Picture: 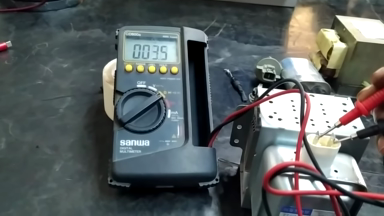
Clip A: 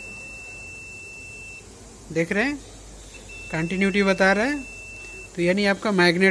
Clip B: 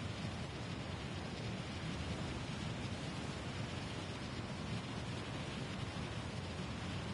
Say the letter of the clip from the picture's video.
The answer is A